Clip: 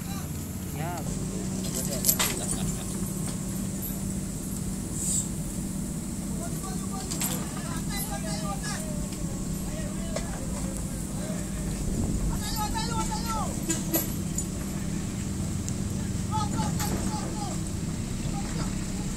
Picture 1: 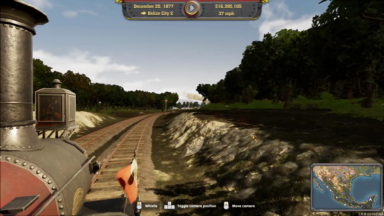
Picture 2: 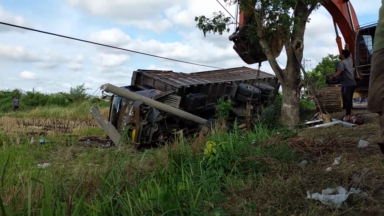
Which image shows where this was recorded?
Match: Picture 2